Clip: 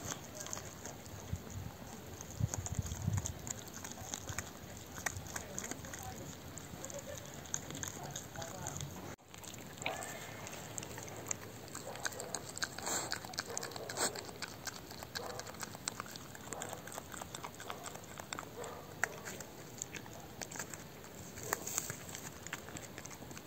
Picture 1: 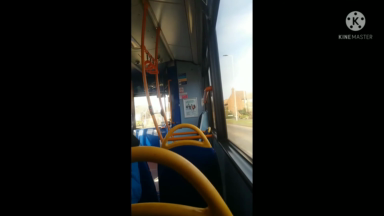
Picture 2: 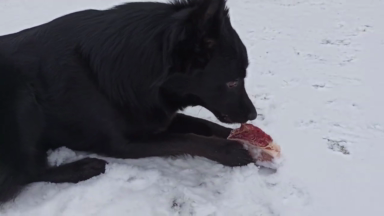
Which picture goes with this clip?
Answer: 2